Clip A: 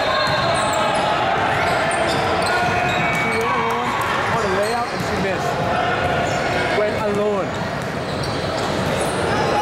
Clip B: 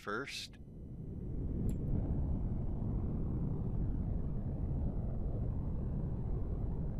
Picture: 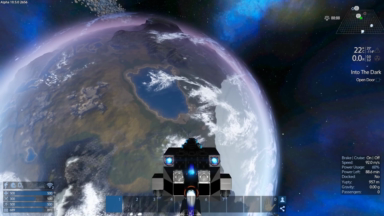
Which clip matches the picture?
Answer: B